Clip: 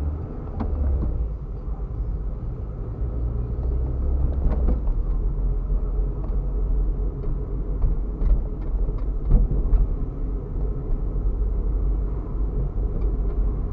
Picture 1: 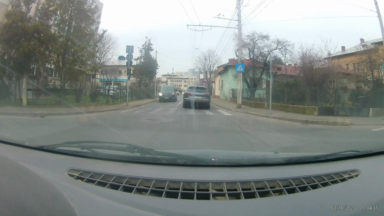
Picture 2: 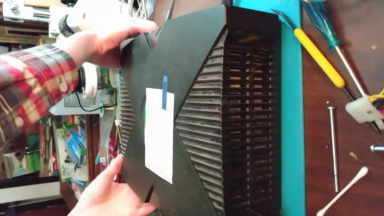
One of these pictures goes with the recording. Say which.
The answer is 1